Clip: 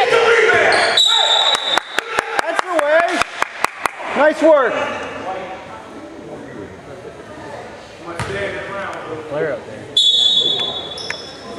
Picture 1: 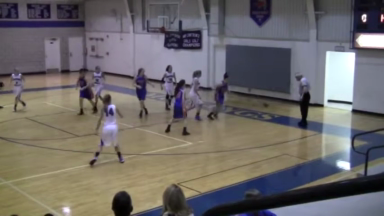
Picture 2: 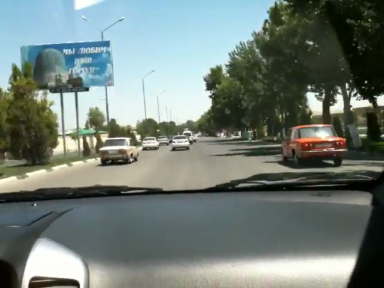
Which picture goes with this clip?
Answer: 1